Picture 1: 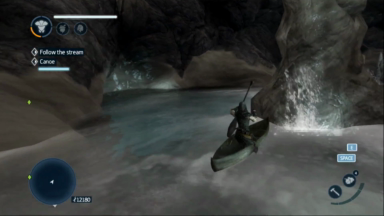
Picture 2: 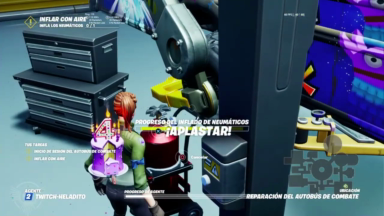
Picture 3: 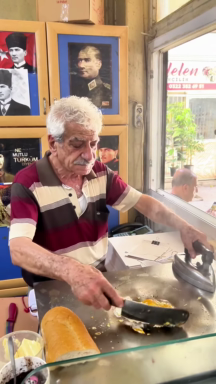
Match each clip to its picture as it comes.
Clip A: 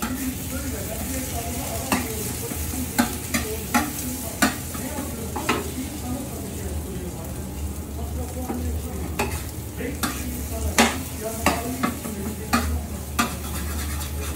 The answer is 3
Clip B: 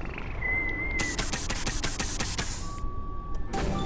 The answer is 2